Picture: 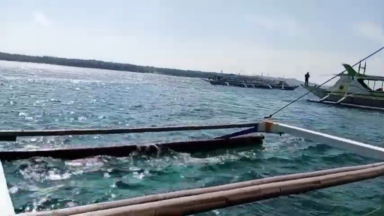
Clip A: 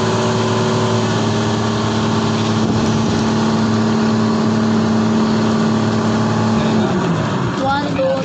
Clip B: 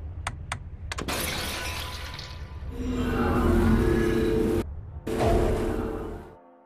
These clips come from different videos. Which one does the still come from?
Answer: A